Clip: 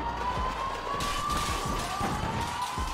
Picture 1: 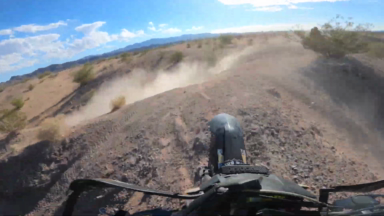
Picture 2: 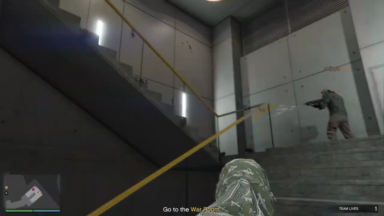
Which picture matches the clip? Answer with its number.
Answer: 2